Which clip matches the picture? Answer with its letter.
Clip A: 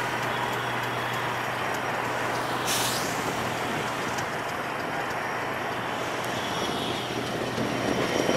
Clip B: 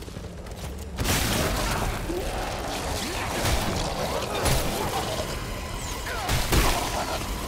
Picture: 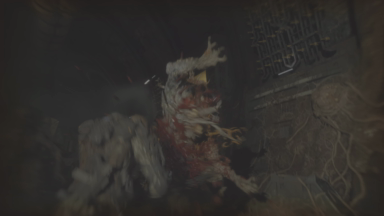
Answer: B